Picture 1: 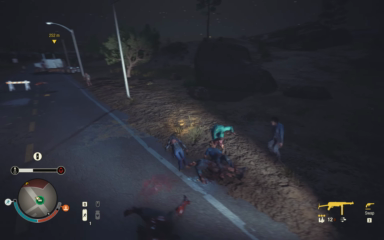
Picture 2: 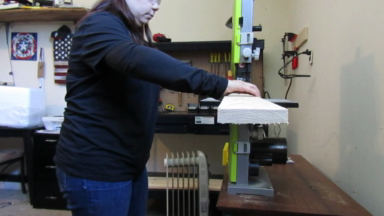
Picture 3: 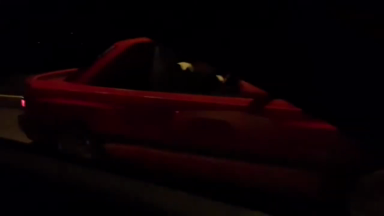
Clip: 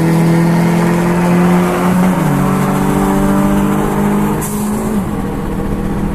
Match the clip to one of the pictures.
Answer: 3